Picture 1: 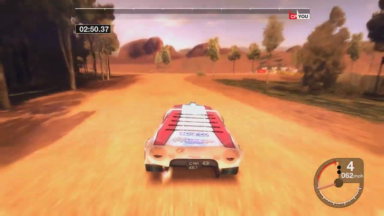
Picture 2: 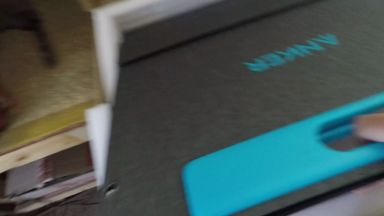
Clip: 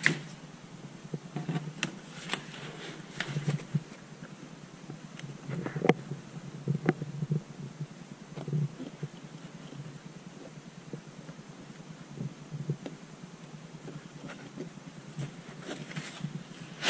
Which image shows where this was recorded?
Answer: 2